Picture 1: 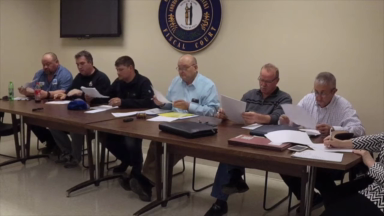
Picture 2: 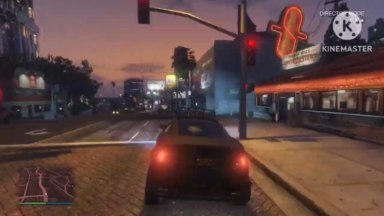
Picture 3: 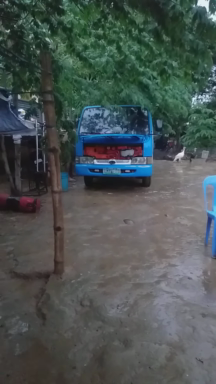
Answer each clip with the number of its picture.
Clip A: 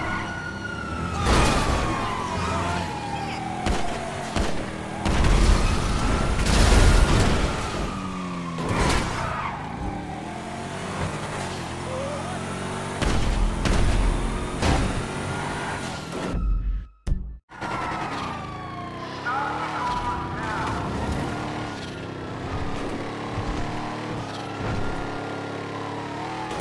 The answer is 2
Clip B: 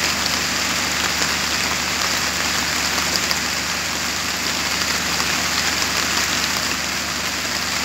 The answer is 3